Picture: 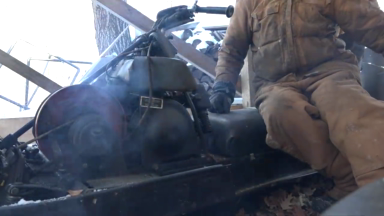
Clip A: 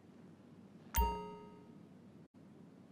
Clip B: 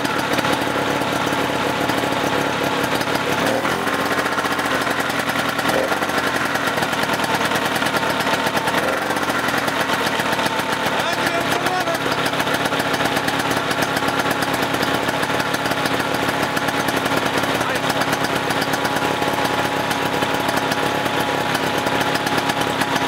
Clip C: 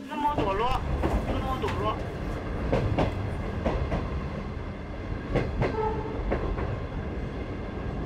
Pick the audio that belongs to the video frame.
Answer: B